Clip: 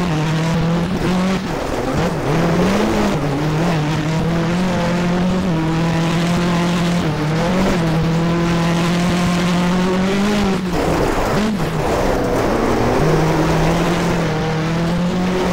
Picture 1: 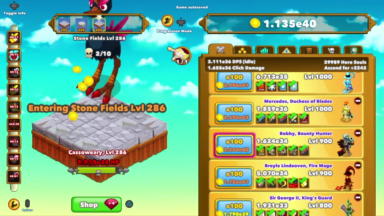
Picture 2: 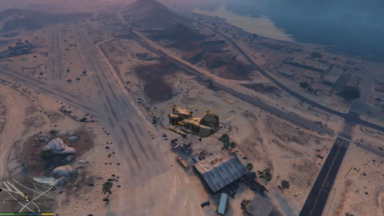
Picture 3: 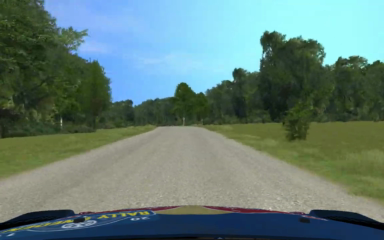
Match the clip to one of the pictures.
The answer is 3